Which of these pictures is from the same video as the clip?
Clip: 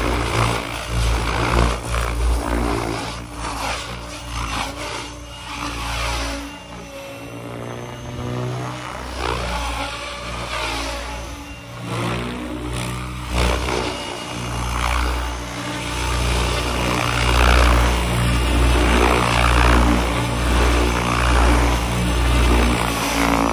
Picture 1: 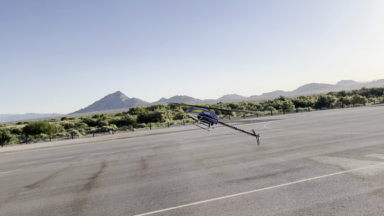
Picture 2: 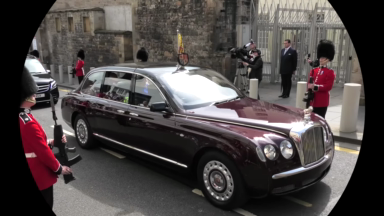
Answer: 1